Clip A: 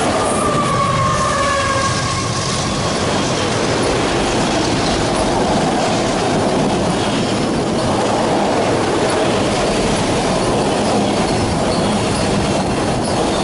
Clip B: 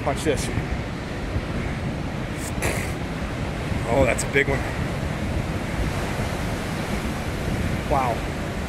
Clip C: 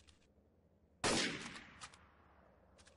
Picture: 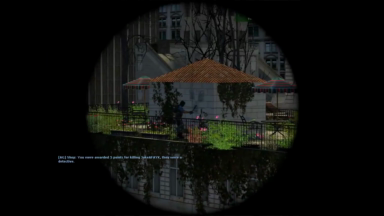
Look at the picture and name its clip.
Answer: C